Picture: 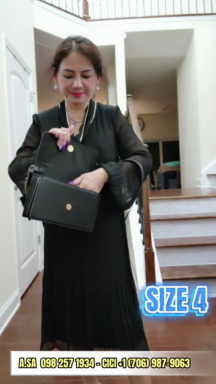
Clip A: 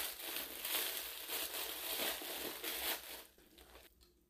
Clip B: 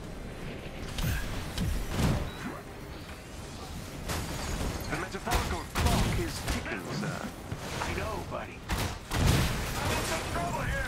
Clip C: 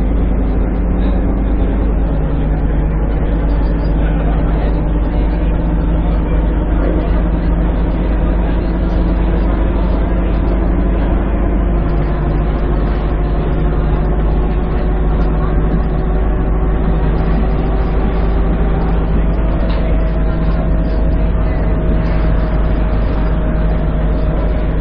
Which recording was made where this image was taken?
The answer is A